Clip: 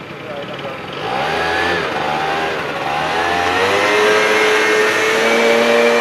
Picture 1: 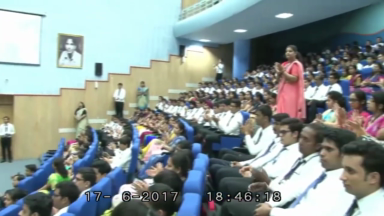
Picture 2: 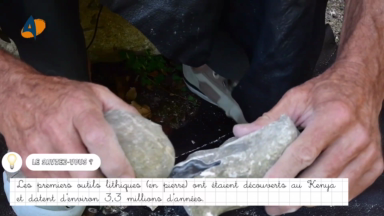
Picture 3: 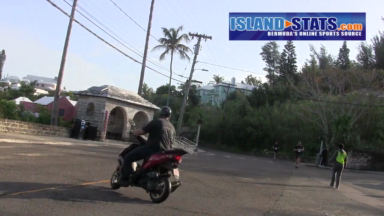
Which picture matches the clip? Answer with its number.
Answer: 3